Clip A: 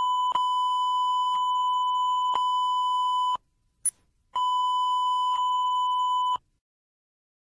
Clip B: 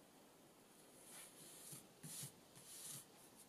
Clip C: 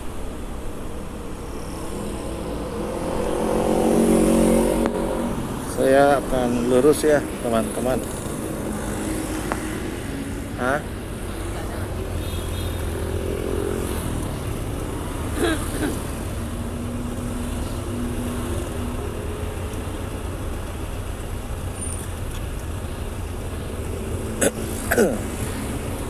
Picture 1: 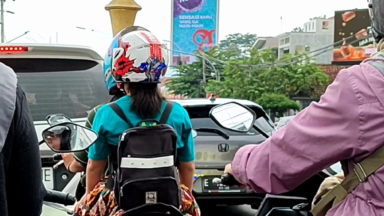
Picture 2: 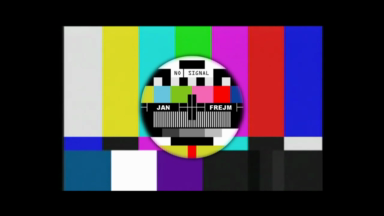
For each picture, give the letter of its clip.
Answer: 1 C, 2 A